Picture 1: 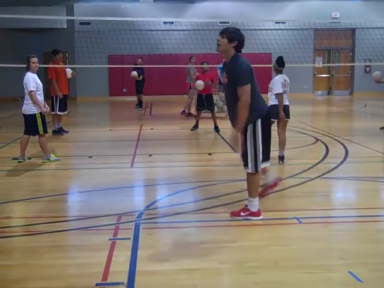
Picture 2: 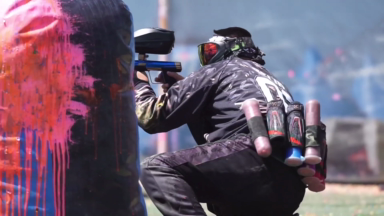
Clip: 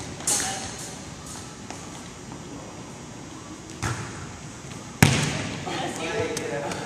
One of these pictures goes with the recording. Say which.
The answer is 1